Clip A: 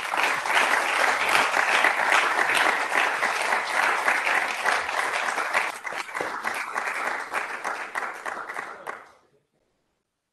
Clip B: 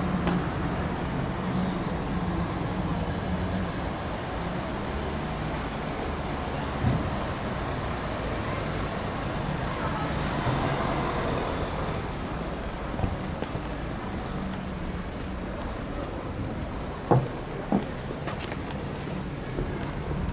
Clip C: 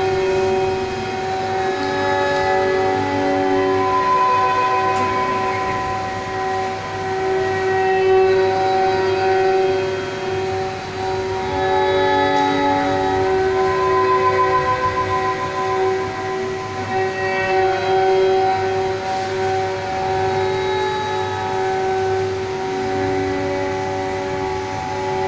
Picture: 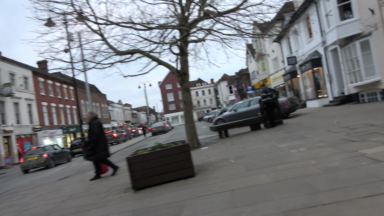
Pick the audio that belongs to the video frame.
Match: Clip B